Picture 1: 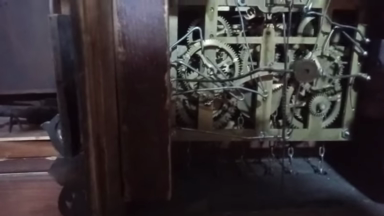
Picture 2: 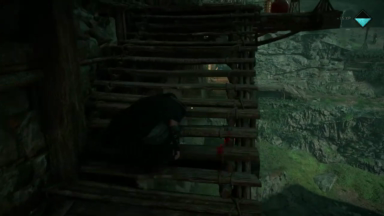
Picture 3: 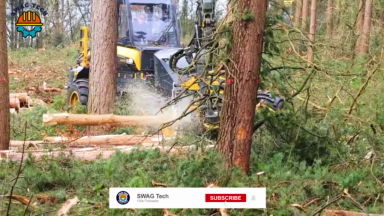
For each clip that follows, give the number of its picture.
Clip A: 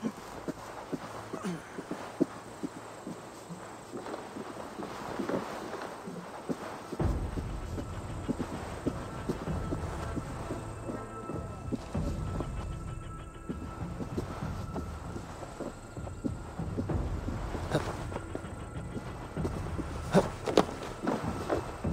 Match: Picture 2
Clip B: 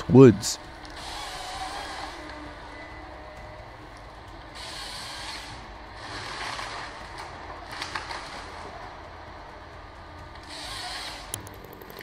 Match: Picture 3